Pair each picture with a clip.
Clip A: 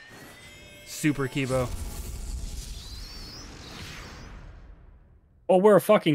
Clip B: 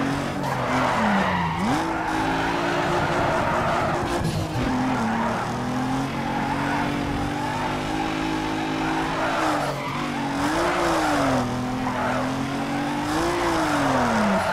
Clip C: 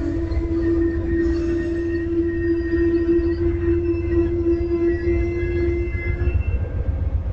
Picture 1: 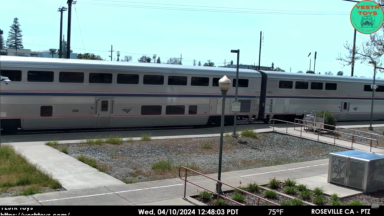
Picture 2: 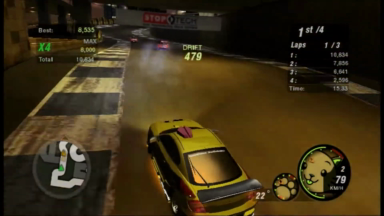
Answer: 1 C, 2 B